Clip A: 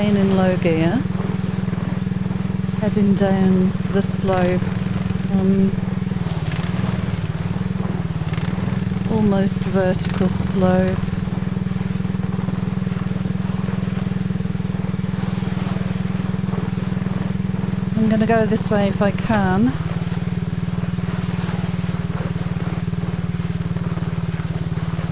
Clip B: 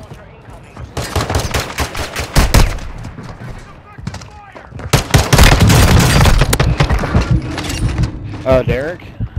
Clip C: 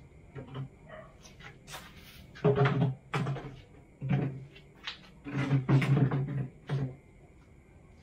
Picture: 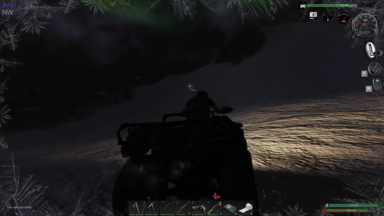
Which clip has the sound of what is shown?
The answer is A